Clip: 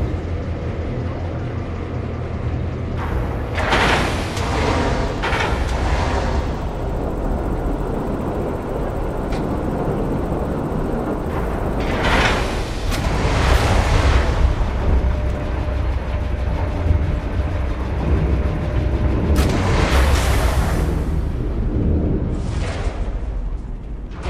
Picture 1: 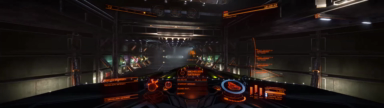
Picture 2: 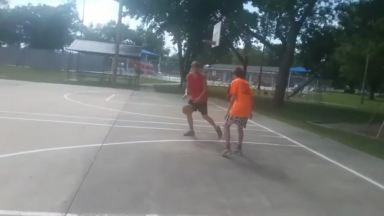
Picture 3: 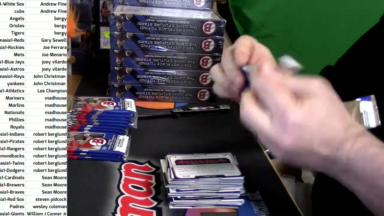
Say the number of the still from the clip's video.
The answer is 1